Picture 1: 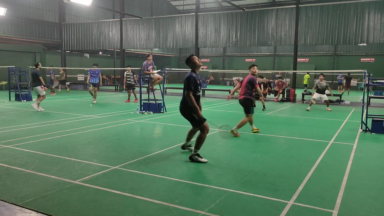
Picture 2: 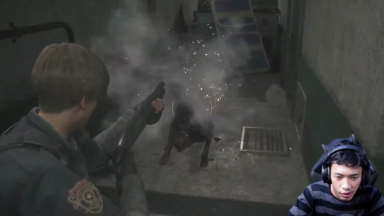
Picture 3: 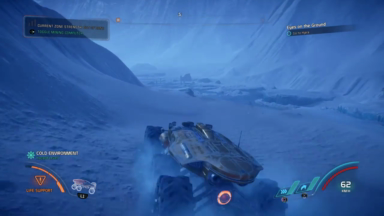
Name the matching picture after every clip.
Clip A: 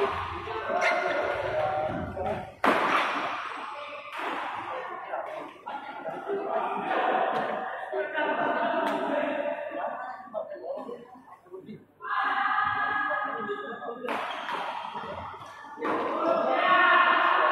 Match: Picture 1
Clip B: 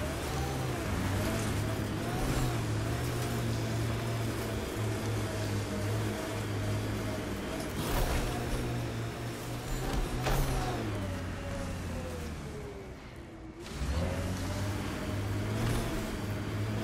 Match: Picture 3